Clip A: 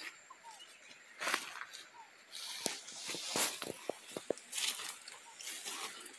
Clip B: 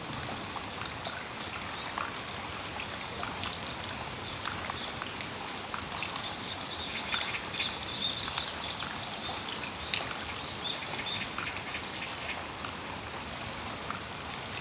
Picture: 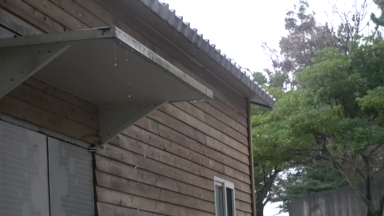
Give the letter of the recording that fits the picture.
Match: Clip B